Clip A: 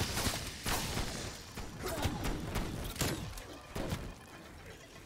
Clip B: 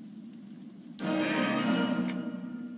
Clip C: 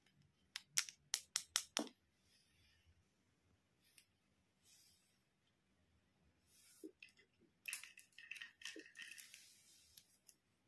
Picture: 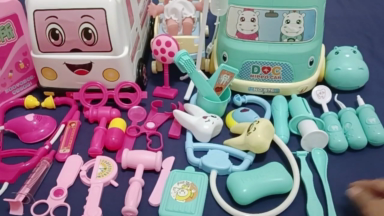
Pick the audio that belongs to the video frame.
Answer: C